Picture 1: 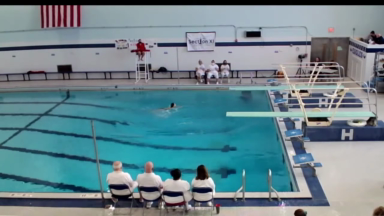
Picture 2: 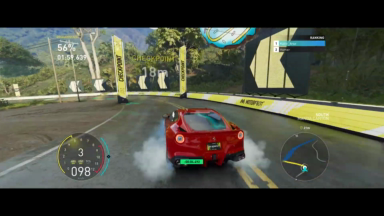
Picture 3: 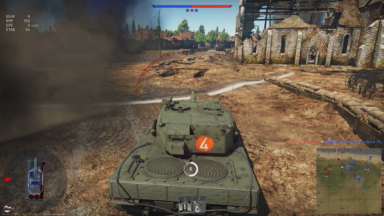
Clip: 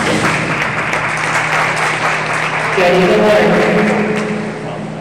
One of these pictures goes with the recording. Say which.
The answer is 1